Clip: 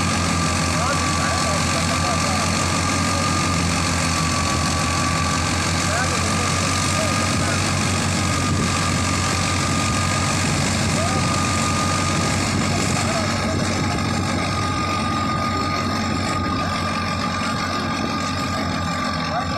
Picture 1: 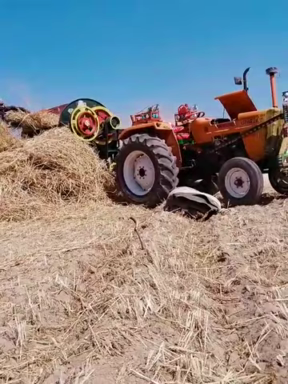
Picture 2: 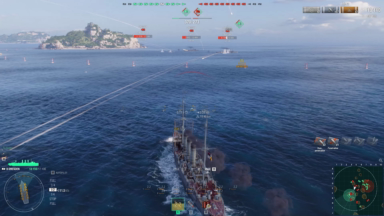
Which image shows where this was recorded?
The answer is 1